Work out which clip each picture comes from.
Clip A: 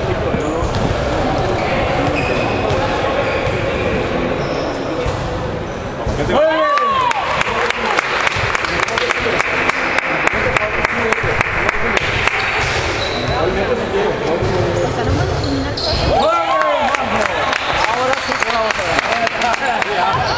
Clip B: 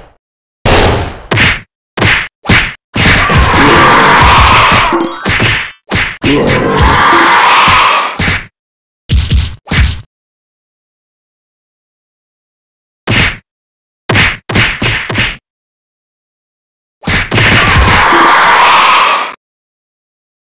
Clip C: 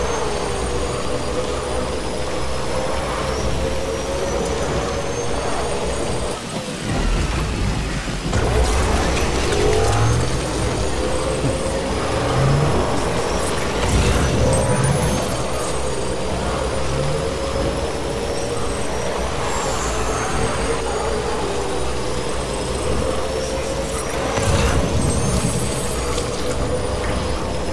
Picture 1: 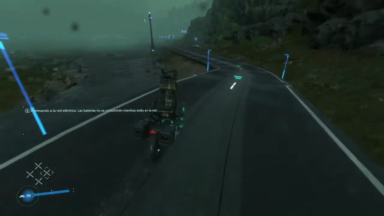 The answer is C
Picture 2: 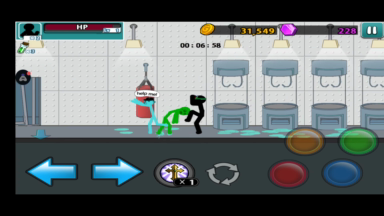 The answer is B